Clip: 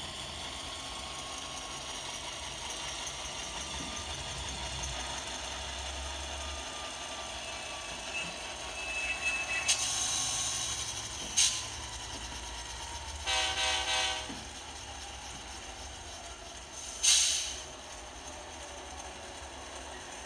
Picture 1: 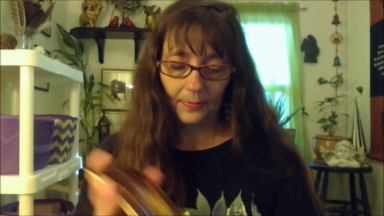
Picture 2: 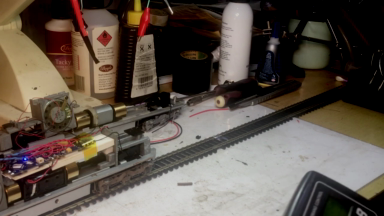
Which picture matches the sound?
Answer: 2